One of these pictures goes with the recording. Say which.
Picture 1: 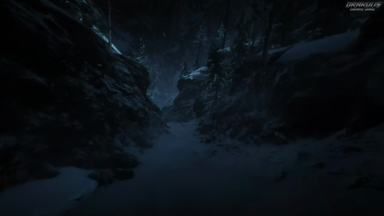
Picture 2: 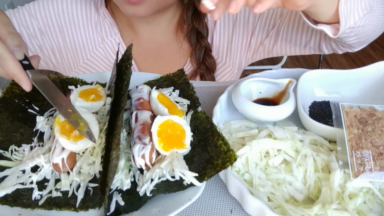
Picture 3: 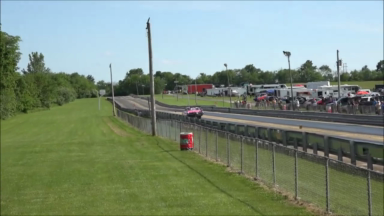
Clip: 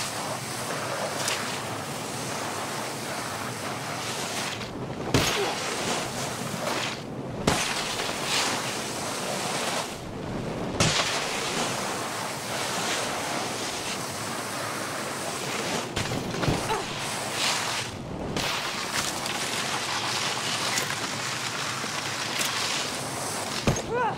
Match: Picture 1